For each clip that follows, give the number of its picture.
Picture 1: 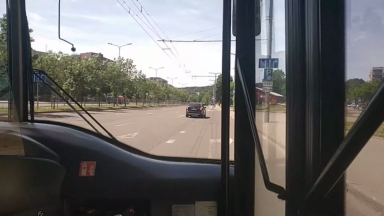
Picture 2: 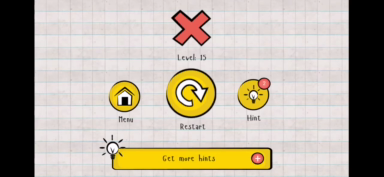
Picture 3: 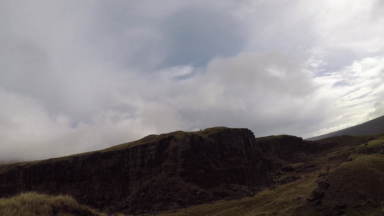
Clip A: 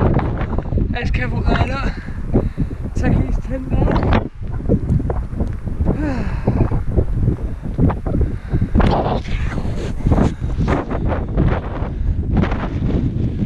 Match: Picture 3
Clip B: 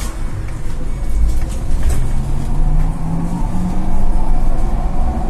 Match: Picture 1